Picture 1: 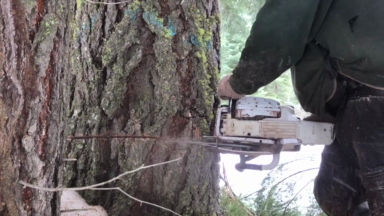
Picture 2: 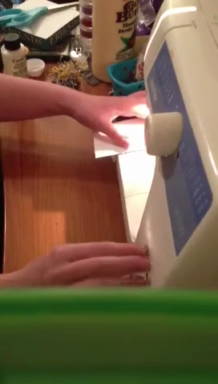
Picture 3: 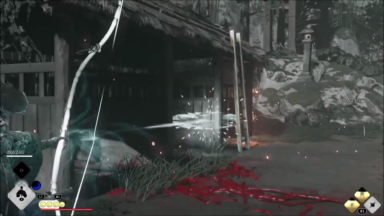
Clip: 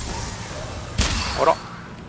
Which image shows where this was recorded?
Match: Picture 3